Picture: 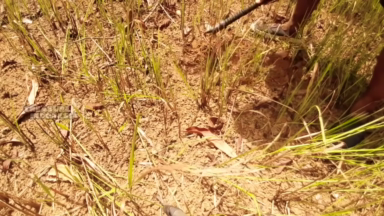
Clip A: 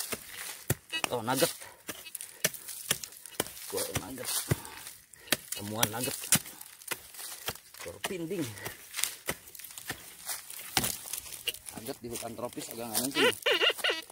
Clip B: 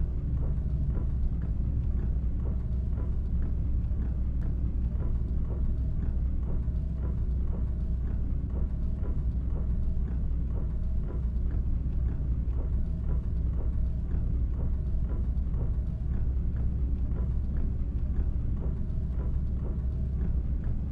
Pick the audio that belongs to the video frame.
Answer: A